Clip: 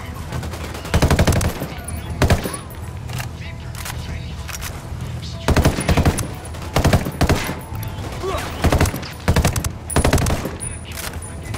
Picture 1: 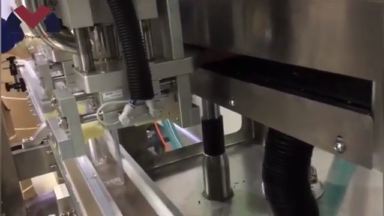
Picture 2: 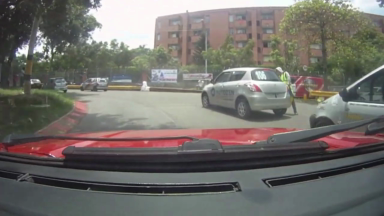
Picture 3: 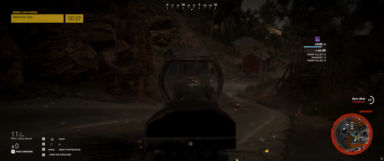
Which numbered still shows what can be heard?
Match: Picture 3